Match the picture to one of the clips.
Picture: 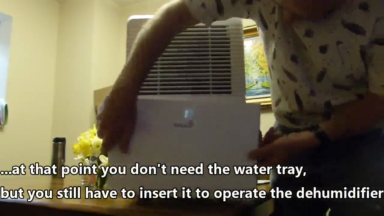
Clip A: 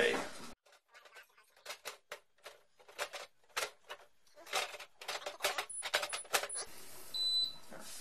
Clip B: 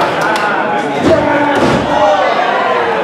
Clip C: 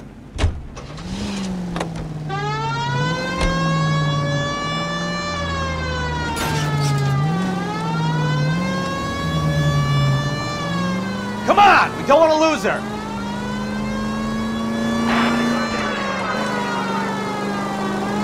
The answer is A